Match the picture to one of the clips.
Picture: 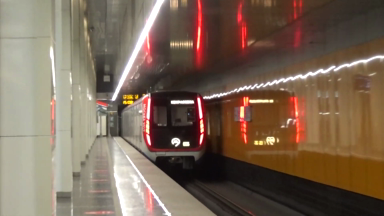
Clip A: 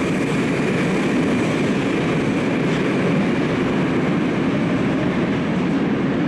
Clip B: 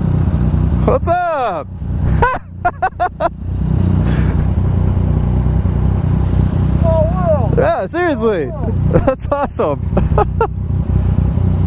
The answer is A